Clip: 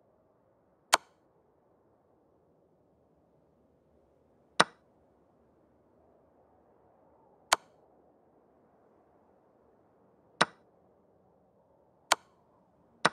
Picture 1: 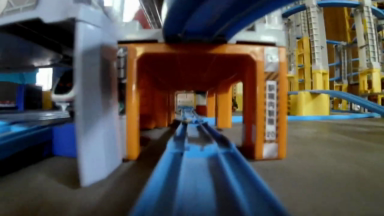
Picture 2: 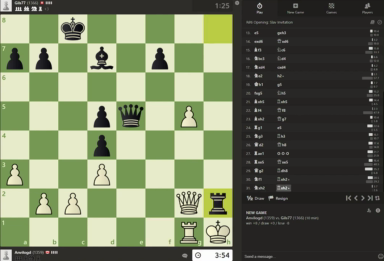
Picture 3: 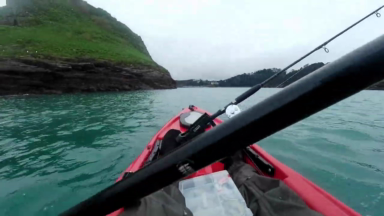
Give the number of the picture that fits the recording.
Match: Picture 2